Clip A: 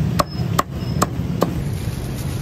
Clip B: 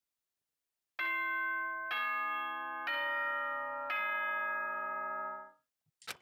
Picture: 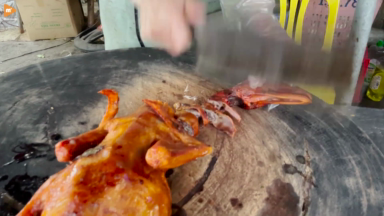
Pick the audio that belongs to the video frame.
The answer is A